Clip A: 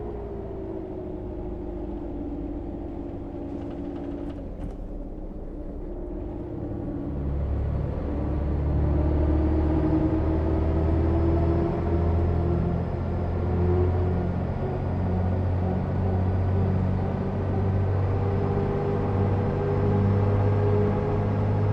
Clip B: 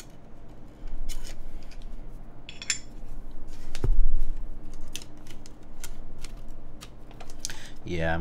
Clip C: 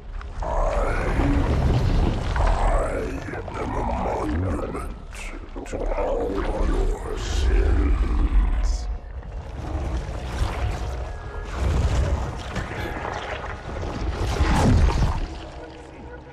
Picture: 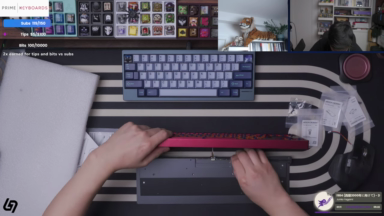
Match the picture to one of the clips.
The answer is B